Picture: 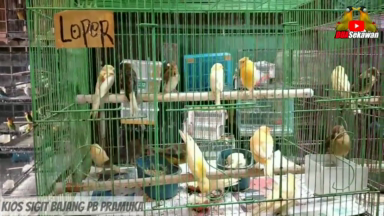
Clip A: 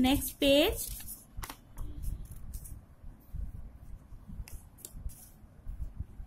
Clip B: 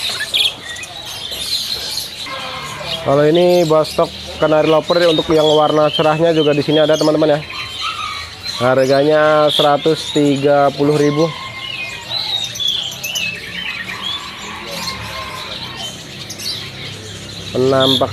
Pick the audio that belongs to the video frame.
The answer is B